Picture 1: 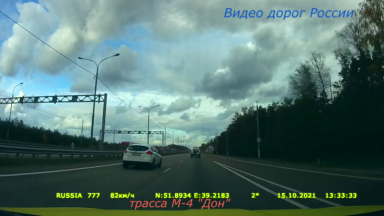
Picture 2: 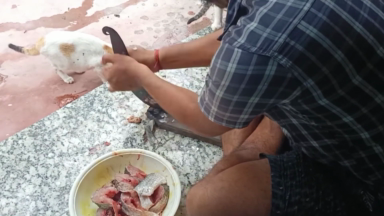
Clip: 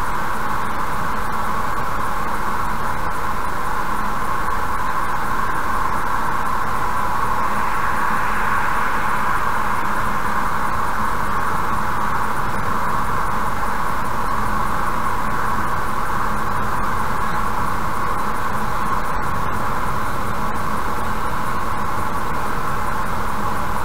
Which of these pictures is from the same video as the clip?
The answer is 1